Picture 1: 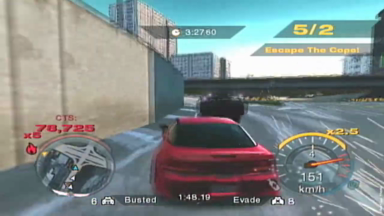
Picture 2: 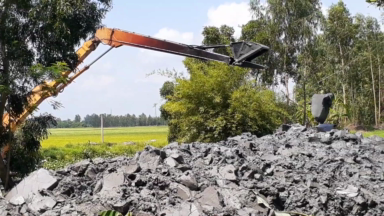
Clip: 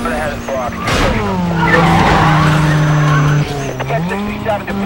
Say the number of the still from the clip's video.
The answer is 1